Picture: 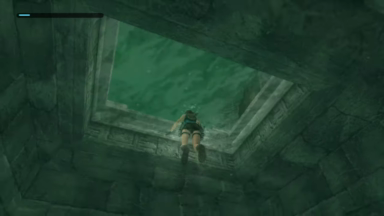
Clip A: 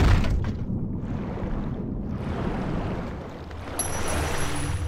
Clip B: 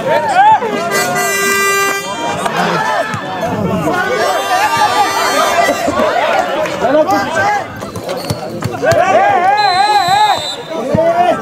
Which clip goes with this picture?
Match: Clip A